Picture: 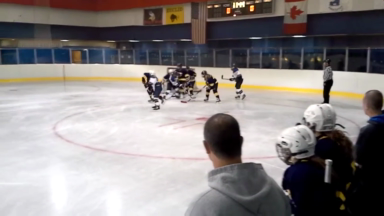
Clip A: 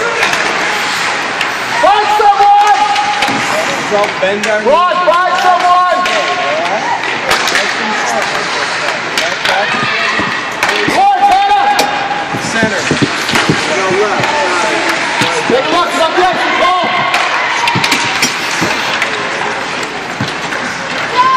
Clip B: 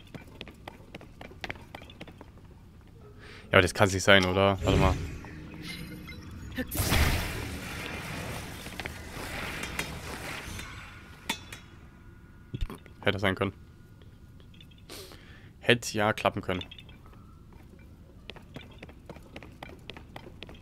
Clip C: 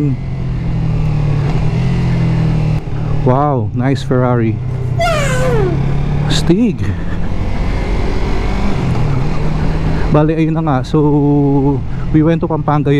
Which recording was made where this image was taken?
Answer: A